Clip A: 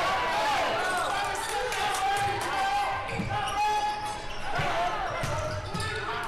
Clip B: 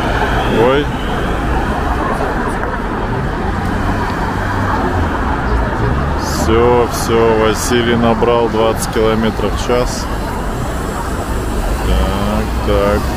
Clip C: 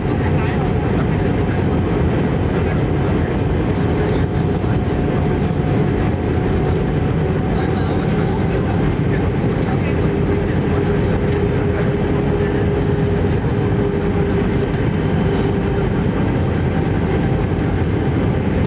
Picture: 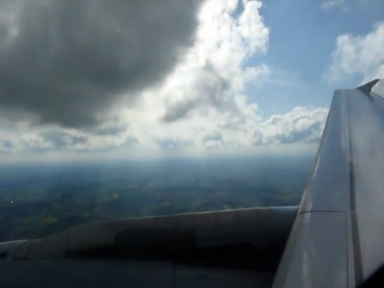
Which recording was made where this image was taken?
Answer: C